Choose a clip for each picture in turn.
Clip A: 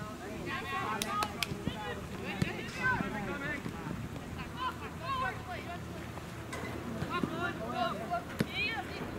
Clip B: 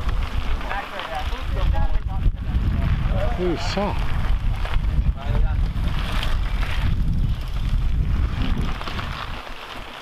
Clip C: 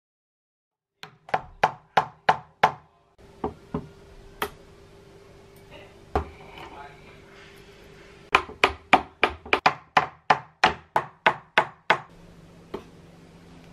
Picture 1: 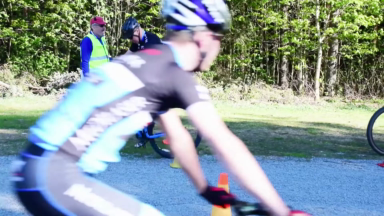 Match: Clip B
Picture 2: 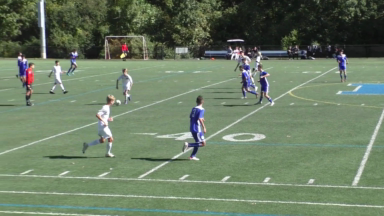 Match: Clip A